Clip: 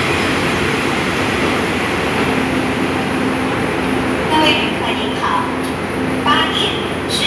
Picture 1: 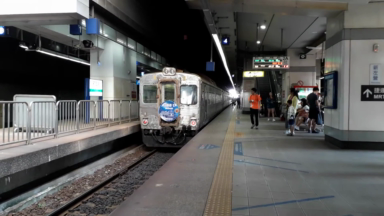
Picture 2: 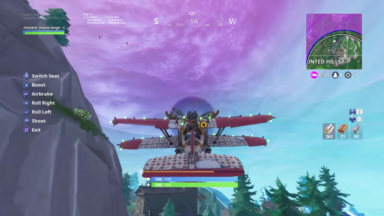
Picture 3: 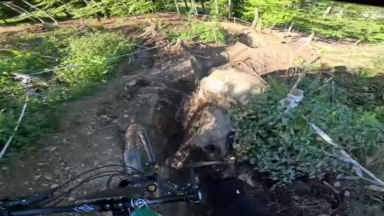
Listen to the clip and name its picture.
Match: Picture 1